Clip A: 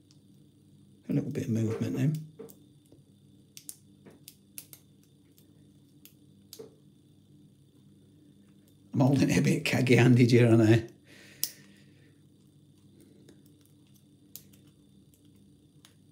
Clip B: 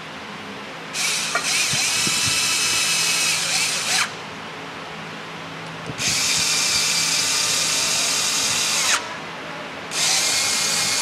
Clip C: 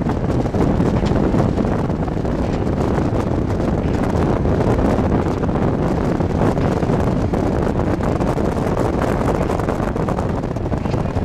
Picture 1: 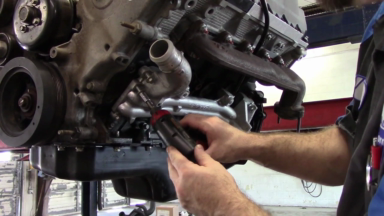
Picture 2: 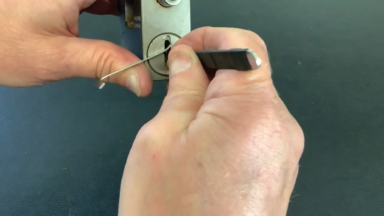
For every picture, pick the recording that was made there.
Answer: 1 B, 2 A